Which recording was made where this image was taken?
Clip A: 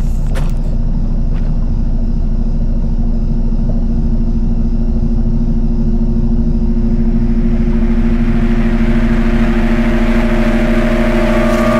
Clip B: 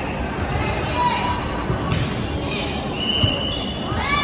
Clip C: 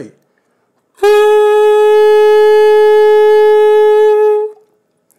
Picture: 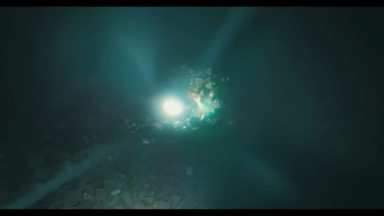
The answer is A